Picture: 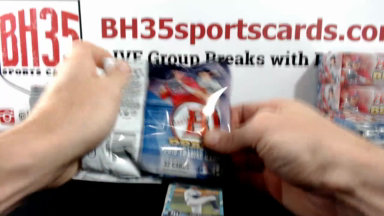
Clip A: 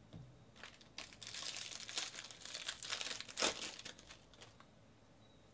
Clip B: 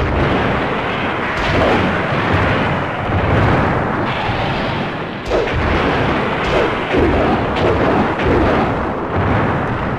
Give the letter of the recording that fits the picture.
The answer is A